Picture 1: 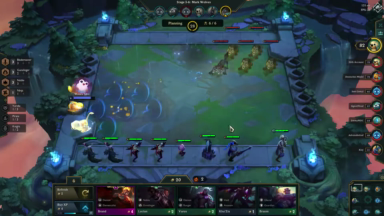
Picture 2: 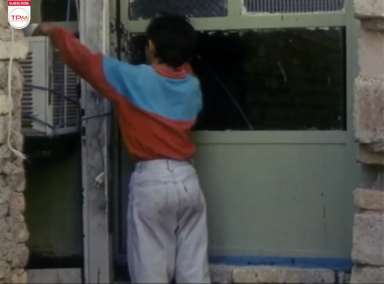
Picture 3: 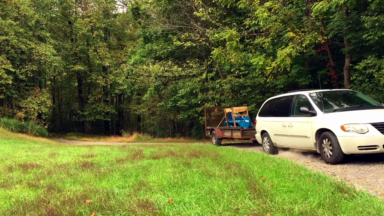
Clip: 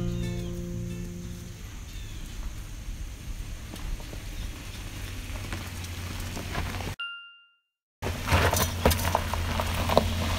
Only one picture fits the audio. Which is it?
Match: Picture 3